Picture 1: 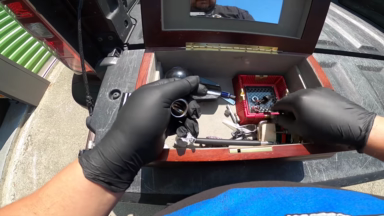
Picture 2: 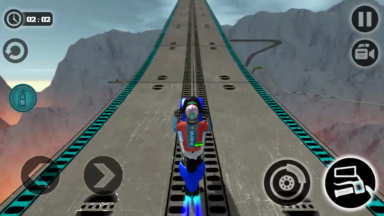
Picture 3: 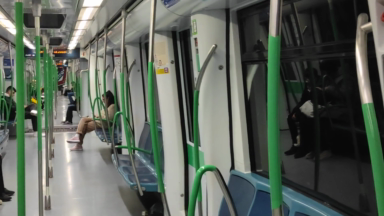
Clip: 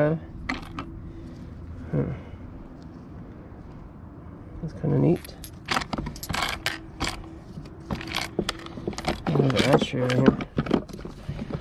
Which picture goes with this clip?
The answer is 1